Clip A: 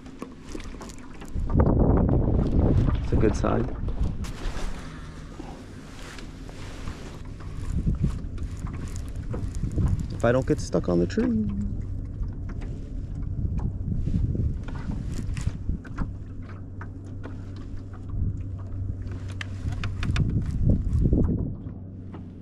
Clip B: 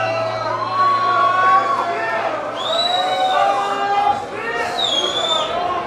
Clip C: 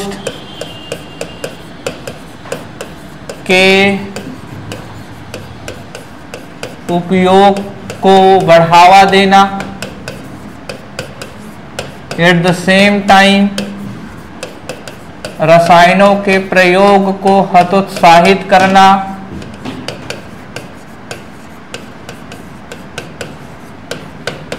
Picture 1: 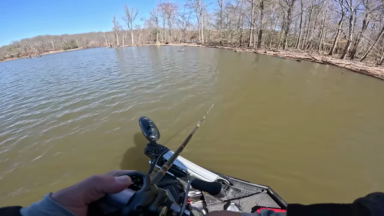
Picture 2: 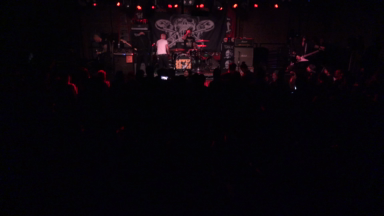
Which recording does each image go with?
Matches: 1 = A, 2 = B